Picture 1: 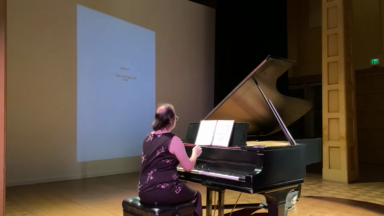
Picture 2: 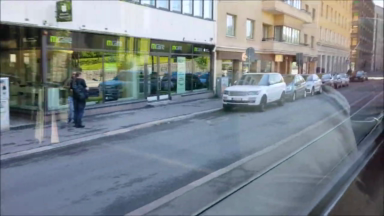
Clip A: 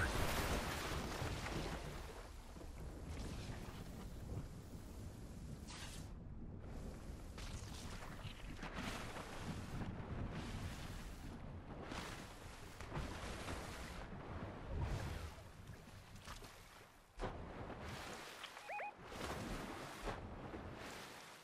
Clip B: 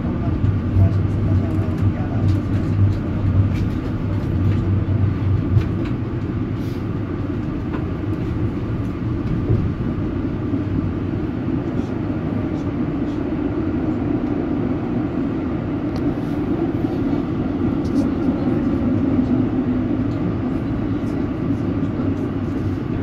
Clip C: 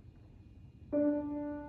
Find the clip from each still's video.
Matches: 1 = C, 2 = B